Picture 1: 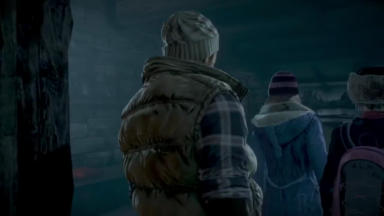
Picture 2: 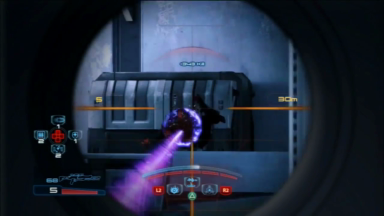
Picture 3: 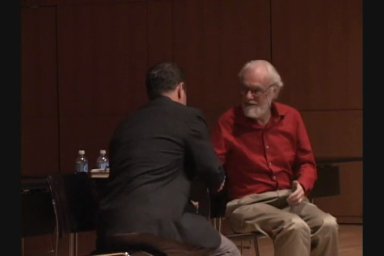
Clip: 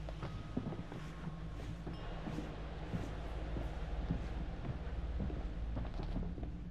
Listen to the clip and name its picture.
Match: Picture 1